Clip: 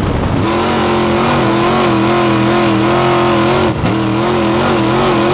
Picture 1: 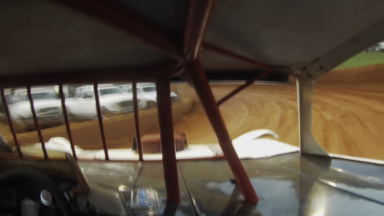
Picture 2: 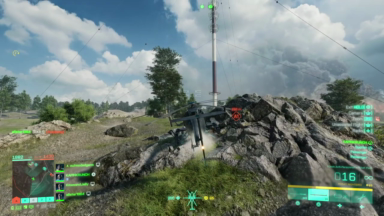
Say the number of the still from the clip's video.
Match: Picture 1